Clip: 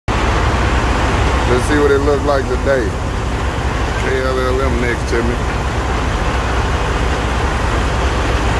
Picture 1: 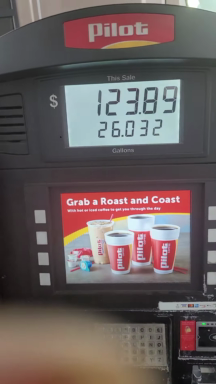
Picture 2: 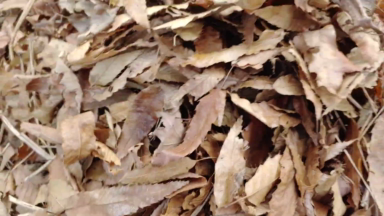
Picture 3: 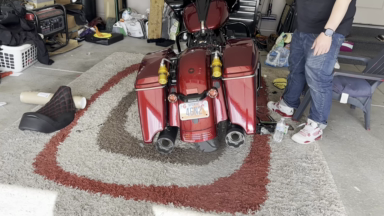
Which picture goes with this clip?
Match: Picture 1